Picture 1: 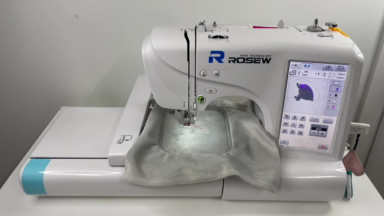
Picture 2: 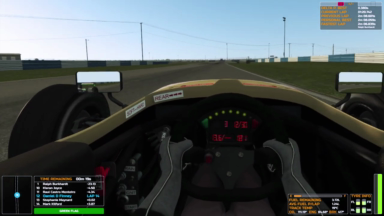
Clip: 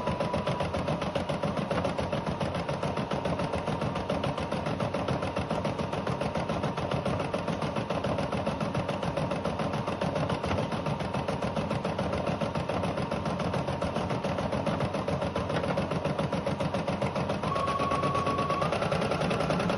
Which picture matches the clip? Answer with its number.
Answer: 1